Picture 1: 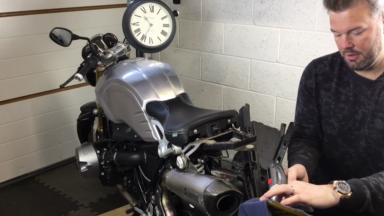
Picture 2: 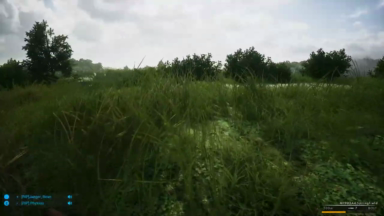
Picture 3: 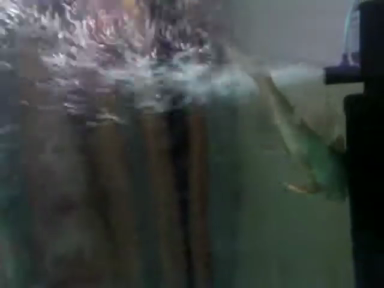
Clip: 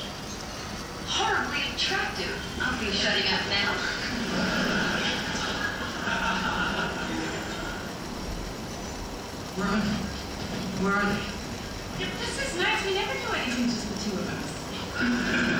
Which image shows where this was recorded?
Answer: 3